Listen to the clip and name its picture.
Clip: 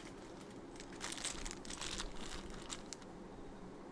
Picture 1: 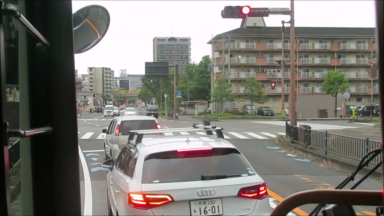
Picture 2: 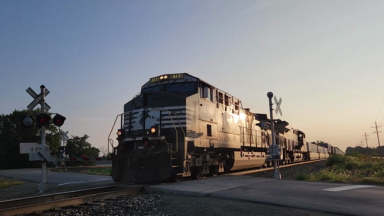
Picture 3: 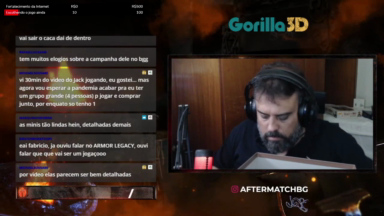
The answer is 3